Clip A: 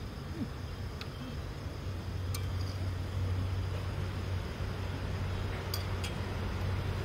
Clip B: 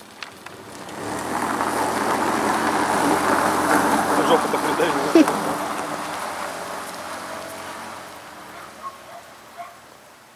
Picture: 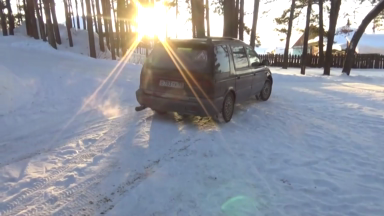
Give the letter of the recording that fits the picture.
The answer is B